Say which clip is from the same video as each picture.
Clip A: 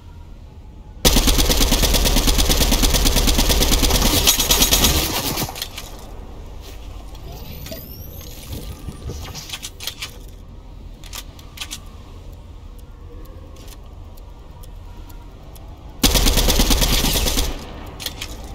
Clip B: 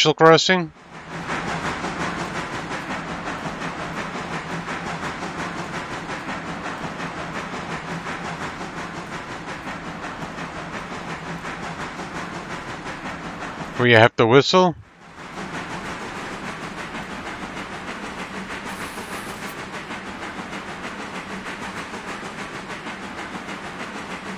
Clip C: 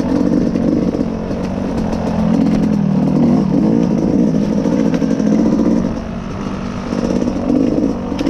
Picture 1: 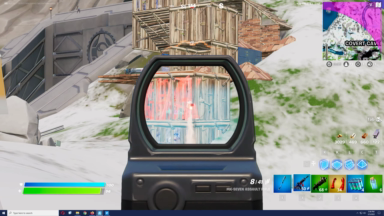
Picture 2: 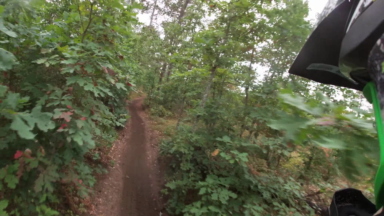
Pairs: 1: A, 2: C